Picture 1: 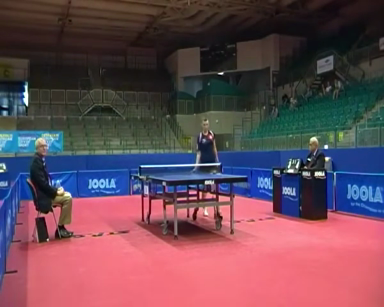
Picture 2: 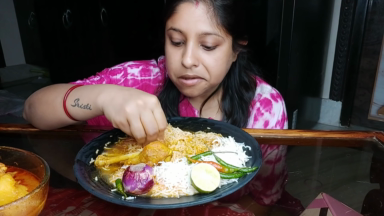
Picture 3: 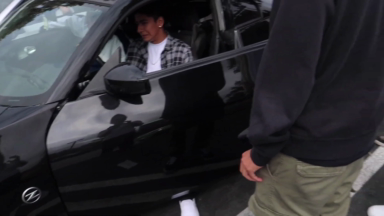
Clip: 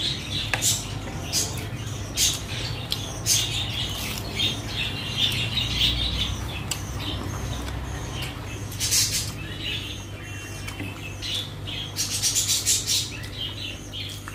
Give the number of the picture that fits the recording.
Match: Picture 2